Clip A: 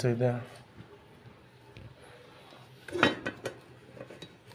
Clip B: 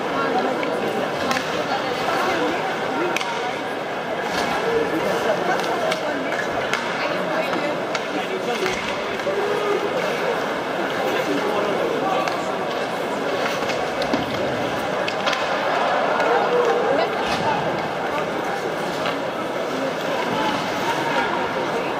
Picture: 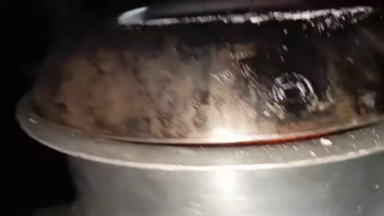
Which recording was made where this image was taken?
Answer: A